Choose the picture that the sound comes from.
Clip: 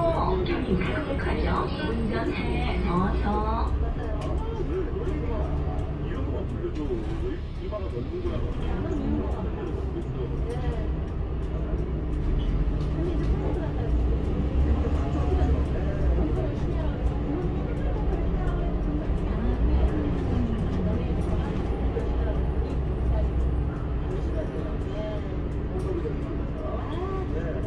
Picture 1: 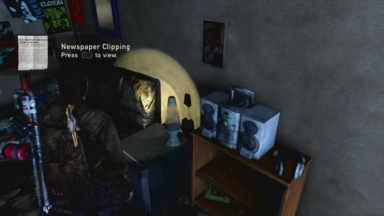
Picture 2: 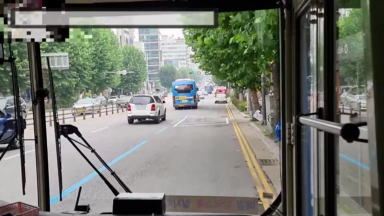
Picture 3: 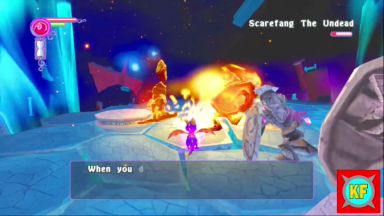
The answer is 2